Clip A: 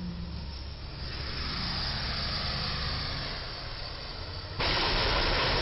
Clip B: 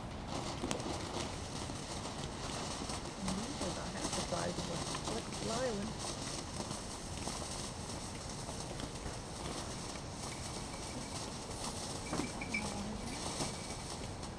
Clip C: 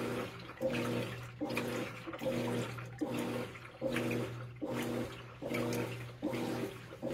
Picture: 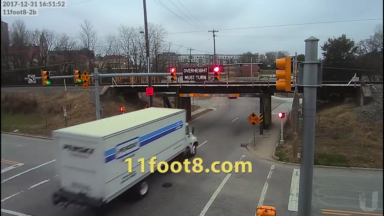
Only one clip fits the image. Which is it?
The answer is A